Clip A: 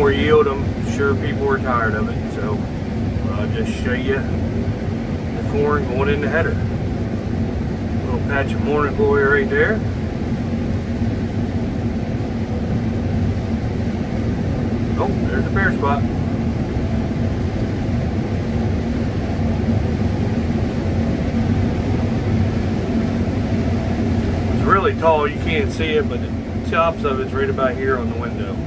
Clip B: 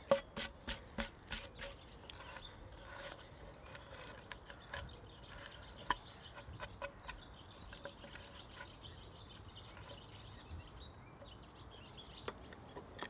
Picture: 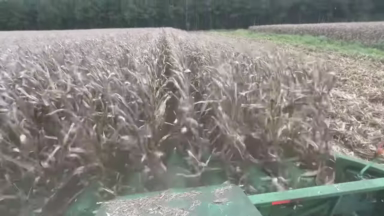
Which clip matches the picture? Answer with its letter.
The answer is A